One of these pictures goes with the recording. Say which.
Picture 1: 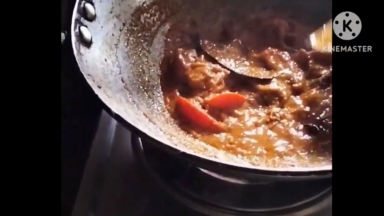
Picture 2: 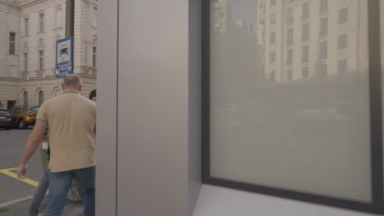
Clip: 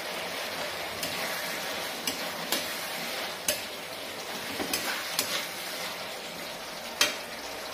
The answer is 1